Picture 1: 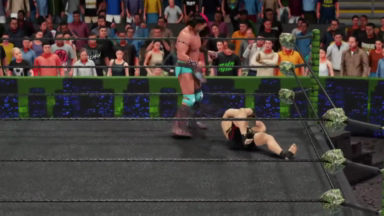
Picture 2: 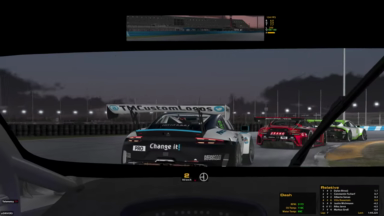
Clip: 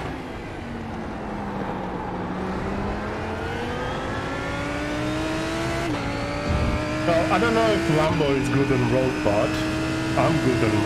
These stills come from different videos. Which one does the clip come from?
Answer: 2